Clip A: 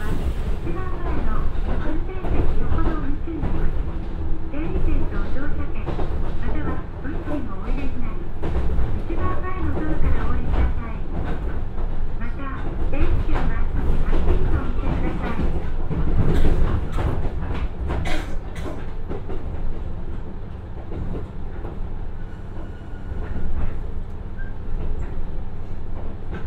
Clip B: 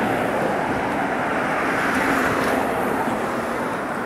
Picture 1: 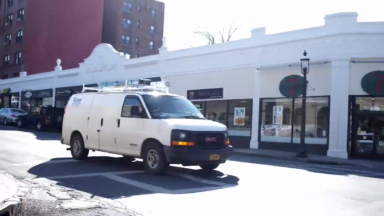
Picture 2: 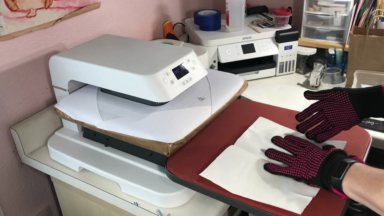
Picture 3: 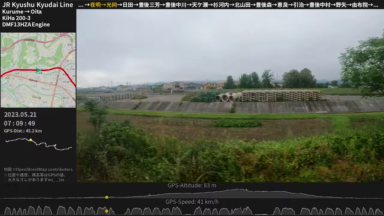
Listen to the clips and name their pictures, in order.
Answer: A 3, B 1